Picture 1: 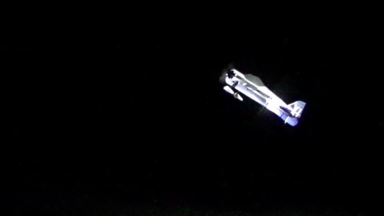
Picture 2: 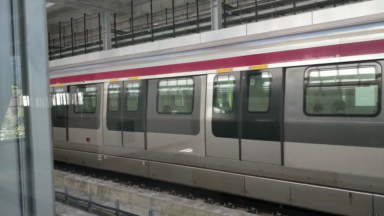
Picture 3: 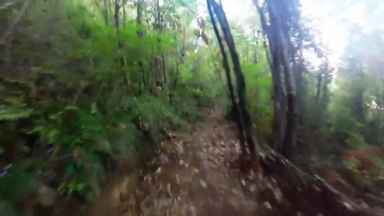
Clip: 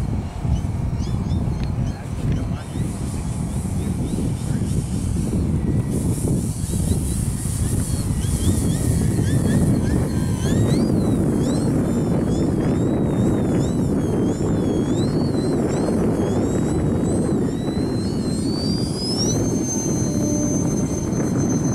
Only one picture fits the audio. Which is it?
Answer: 1